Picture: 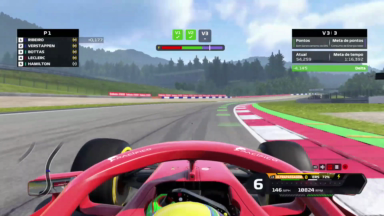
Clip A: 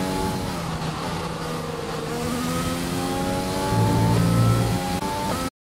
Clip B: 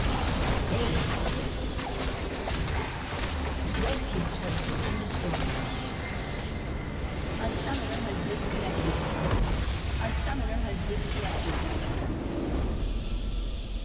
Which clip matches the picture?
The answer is A